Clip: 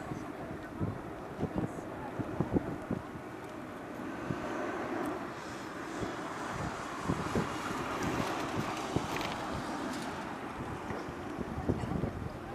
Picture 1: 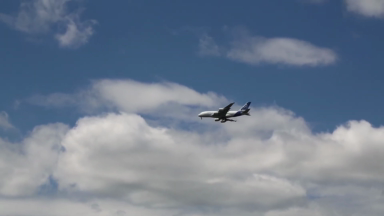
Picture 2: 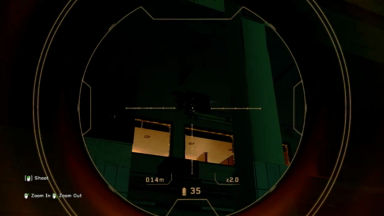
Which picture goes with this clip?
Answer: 1